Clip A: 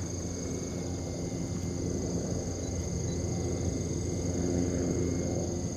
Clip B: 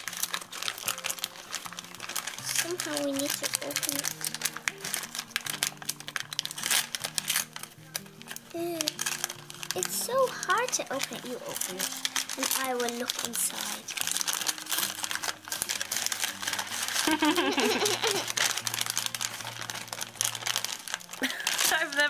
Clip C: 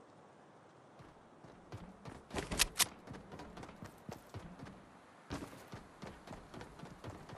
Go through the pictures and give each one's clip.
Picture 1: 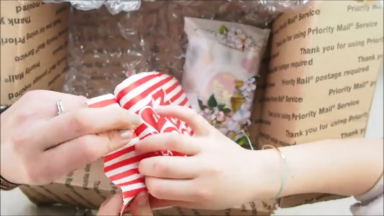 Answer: B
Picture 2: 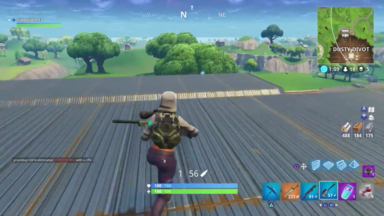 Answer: C